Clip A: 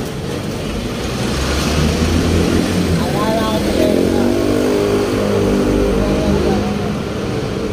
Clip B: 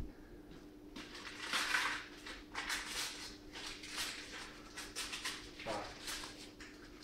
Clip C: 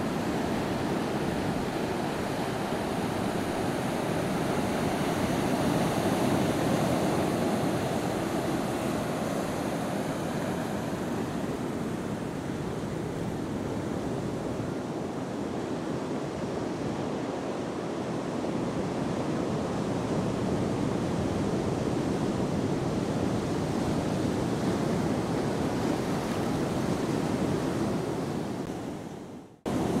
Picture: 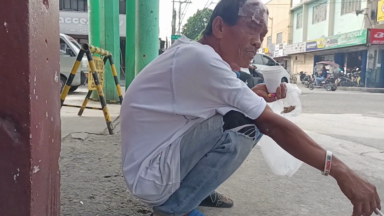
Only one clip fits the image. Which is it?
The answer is A